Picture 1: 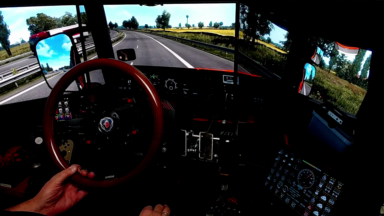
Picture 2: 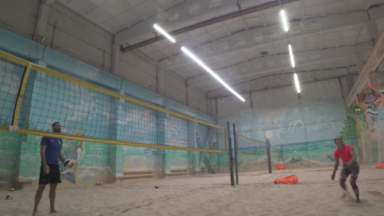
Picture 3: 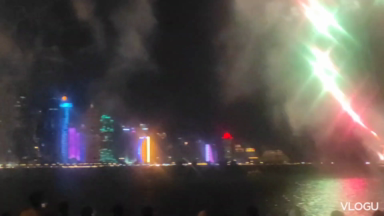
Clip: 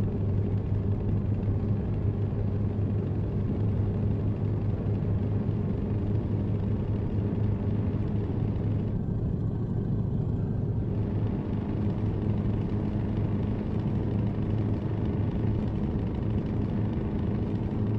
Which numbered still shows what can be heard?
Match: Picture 1